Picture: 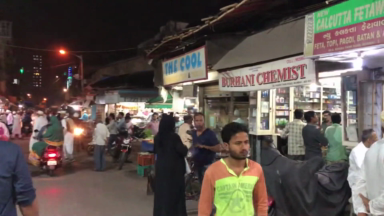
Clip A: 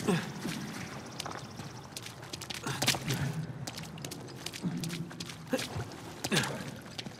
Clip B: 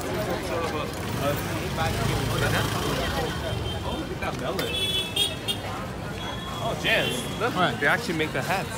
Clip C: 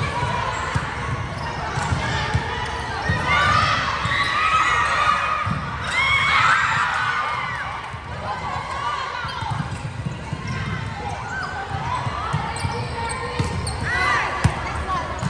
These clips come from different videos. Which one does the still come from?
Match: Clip B